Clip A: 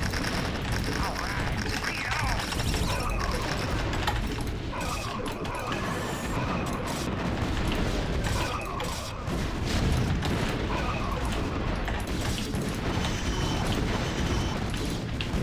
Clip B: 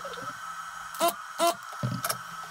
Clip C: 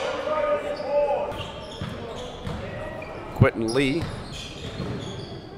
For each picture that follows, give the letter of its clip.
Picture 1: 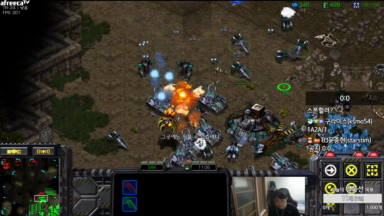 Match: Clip A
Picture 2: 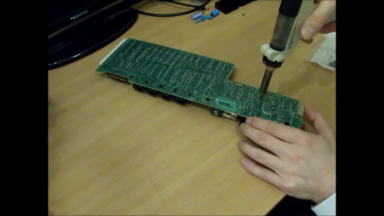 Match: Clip B